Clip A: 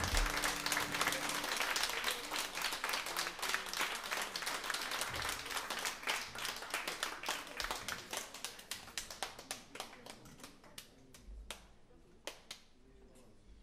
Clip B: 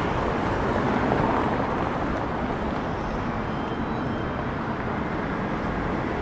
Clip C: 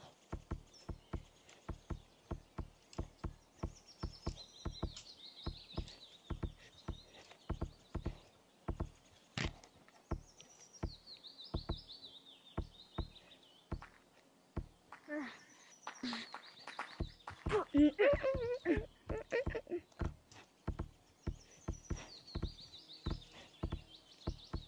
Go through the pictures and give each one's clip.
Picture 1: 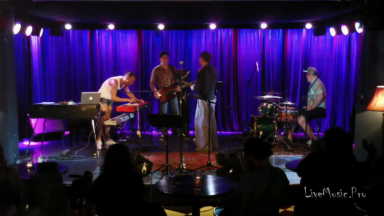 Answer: A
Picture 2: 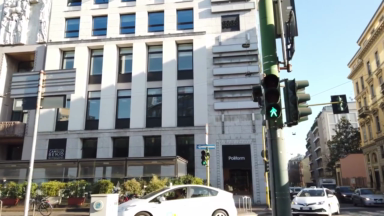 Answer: B